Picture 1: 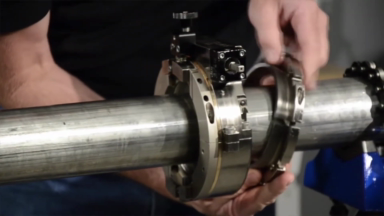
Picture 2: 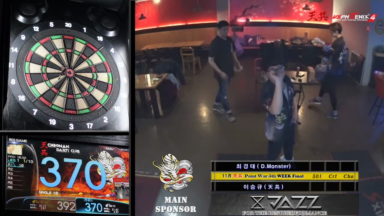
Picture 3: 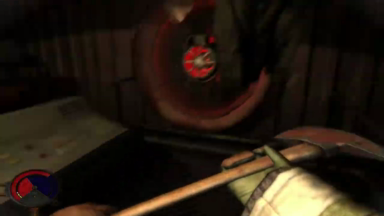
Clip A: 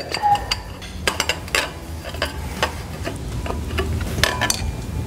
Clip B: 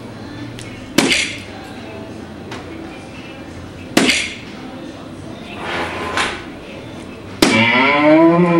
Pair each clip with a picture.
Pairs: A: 1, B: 2